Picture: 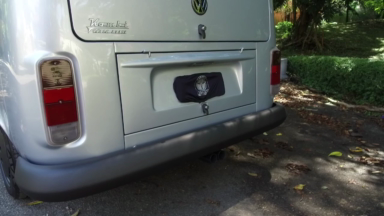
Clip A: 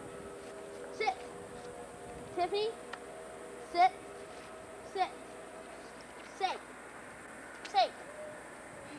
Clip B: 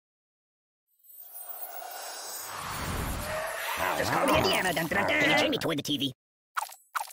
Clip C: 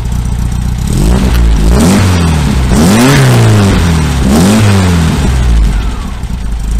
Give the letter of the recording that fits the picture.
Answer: C